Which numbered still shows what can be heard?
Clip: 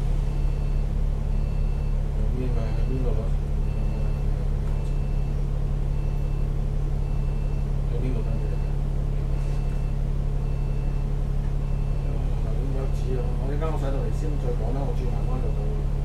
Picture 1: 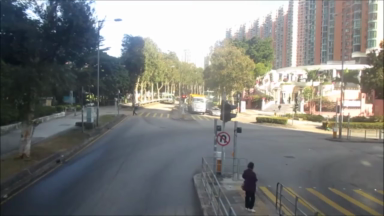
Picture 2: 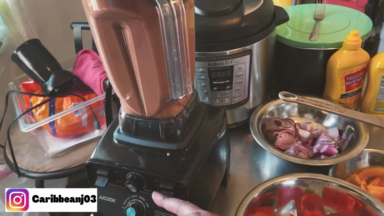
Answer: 1